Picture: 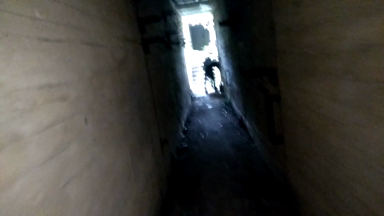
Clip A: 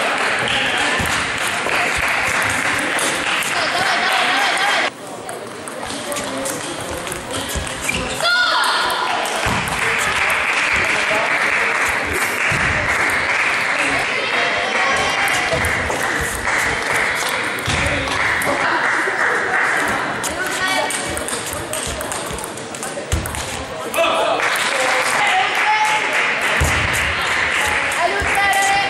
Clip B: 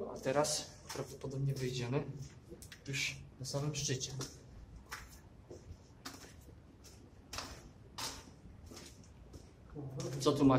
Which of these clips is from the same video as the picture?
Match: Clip B